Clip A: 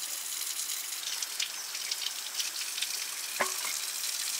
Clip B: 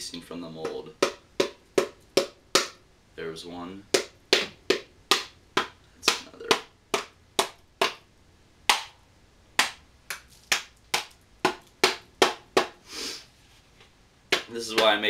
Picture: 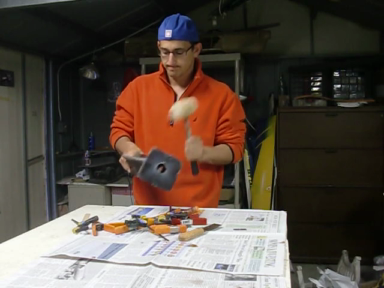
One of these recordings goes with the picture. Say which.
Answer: B